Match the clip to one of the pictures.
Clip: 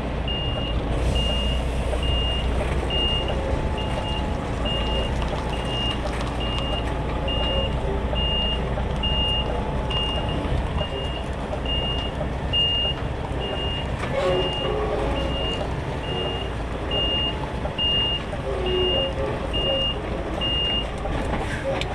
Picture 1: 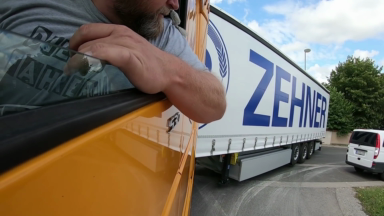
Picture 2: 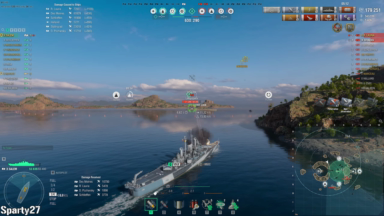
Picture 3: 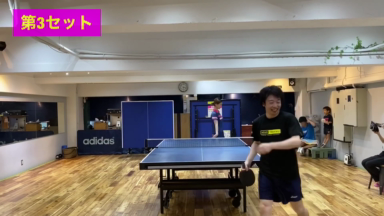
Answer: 1